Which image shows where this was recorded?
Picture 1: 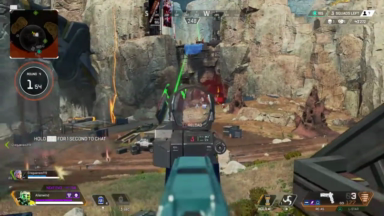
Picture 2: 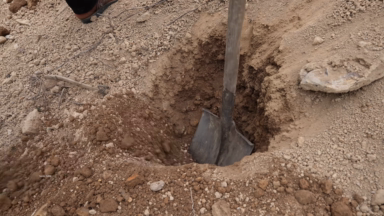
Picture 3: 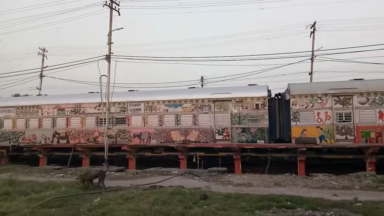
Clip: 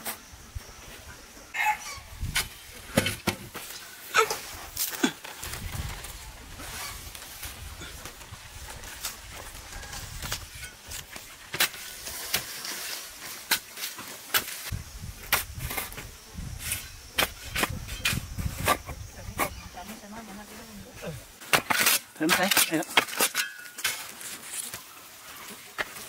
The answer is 2